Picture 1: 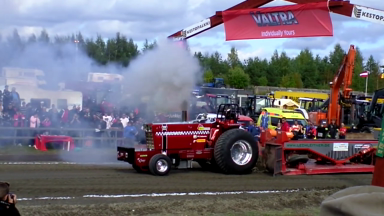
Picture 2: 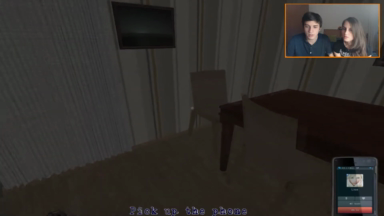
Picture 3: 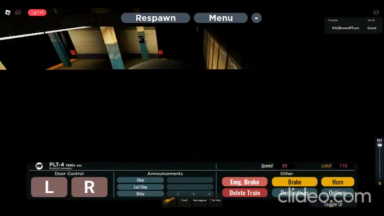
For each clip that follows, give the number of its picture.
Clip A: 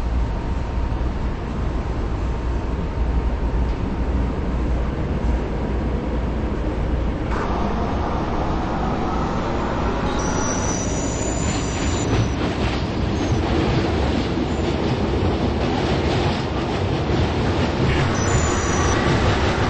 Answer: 3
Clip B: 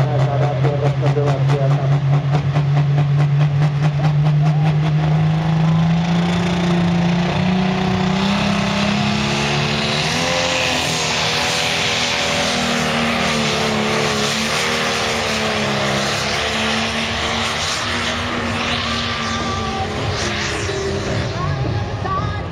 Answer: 1